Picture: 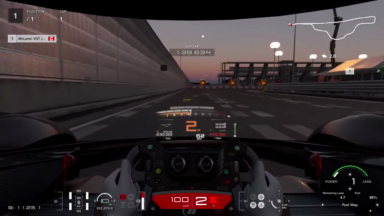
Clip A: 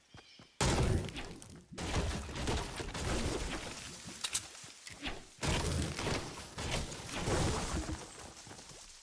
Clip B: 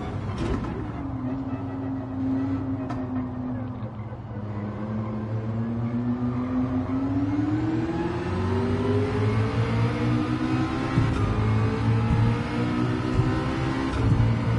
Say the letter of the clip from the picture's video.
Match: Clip B